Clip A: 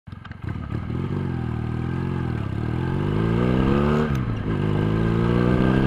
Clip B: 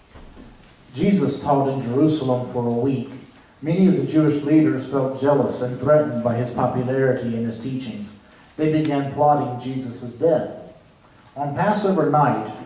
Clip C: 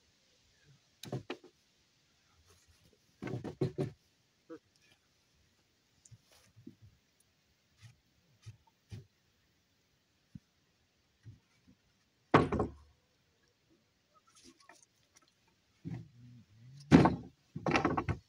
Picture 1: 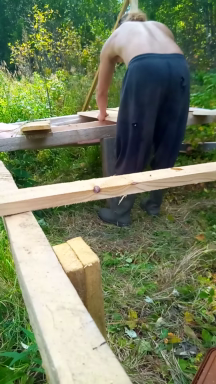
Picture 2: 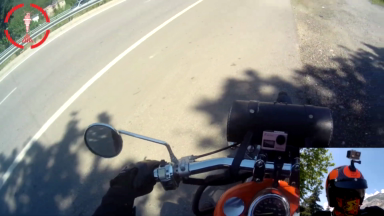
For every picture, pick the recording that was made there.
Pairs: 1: C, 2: A